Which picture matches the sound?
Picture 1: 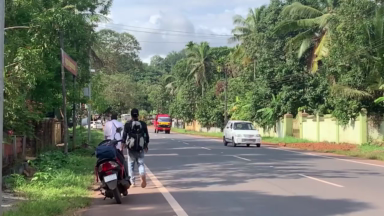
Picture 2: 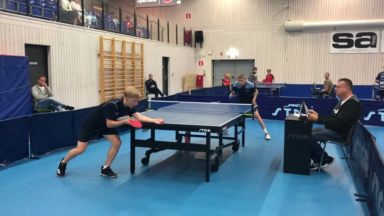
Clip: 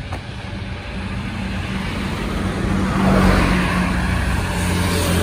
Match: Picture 1